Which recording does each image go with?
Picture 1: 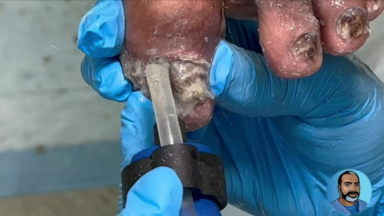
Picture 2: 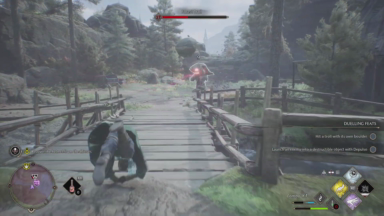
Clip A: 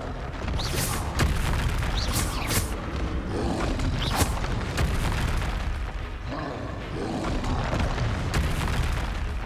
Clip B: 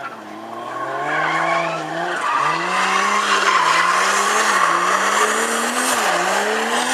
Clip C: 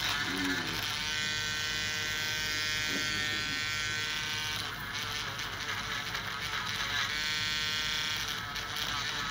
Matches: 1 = C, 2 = A